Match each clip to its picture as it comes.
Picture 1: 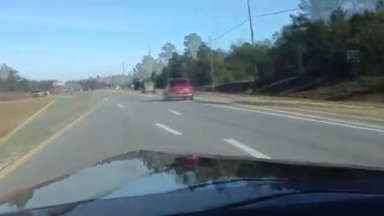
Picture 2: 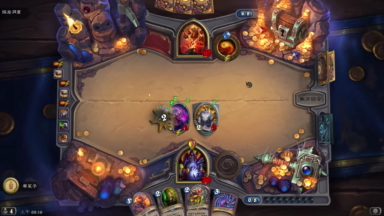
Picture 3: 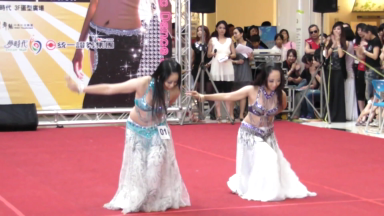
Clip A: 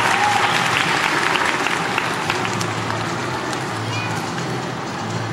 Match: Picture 3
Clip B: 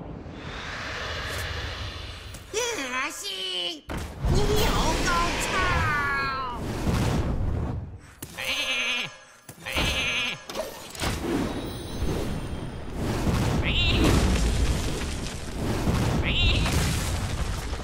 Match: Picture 2